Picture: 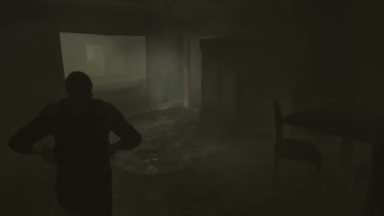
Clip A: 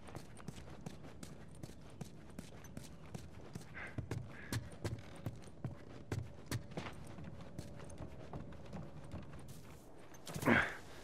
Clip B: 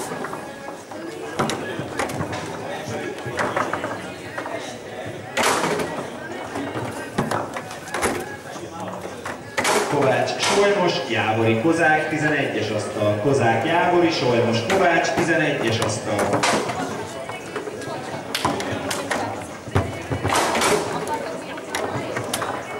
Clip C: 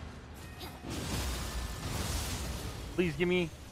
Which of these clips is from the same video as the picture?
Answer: A